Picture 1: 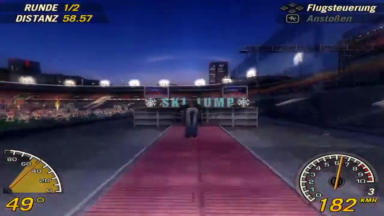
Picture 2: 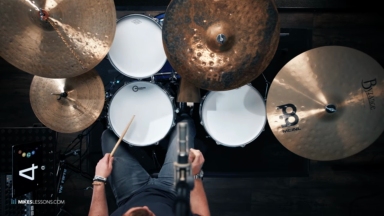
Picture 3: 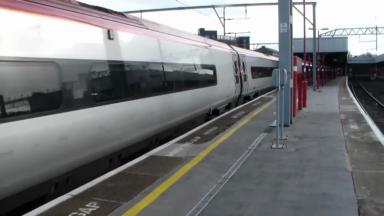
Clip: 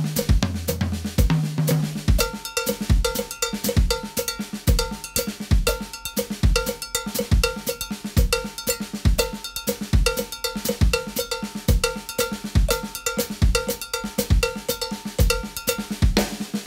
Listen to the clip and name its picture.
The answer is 2